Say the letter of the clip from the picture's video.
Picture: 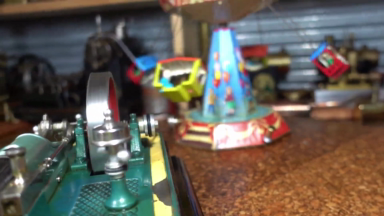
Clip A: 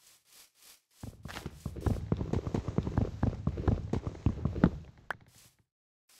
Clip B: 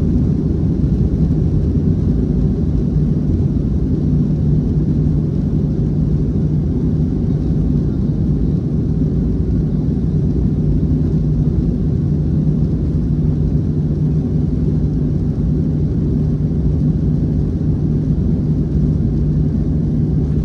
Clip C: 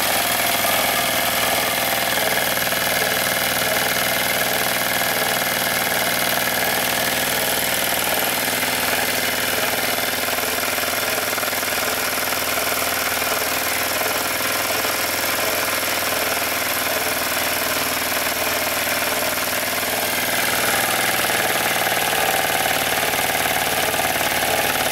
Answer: C